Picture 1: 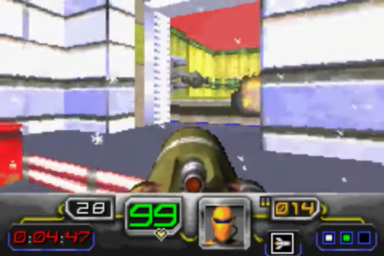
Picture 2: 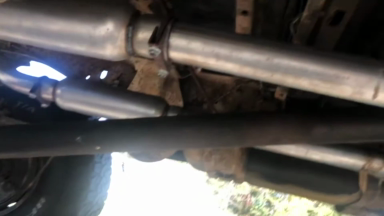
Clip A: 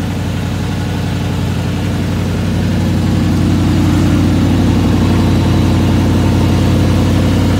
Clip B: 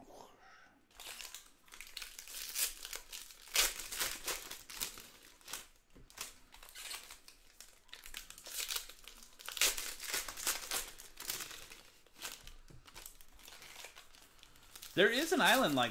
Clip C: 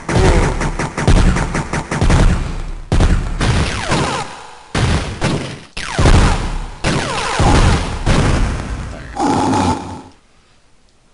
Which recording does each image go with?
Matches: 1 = C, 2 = A